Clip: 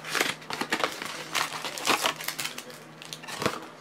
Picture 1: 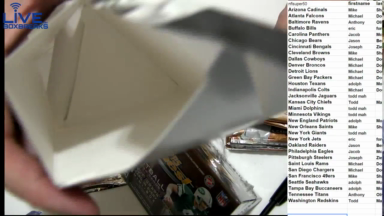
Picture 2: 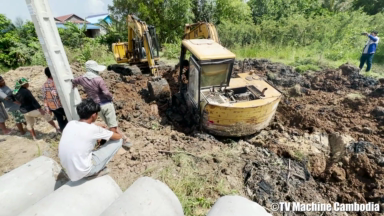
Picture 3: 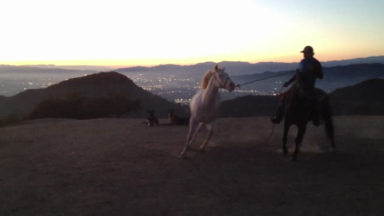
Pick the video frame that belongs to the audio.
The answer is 1